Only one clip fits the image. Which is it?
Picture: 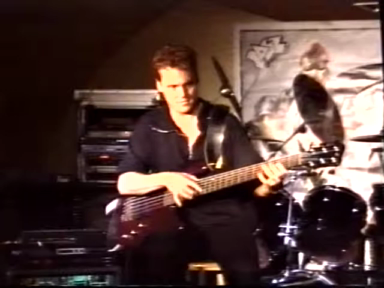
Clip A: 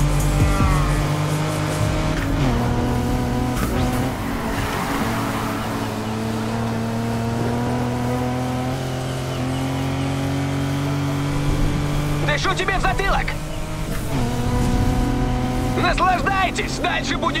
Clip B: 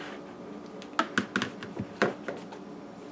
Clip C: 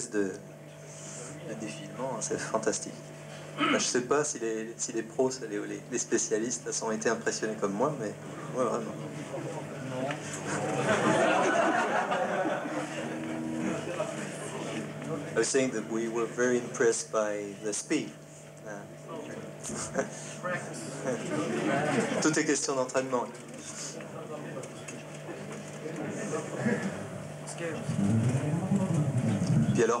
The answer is C